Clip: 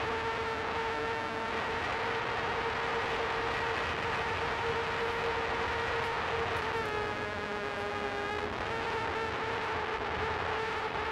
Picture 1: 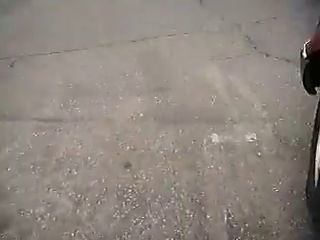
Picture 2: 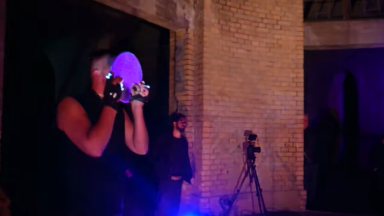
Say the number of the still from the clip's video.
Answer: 2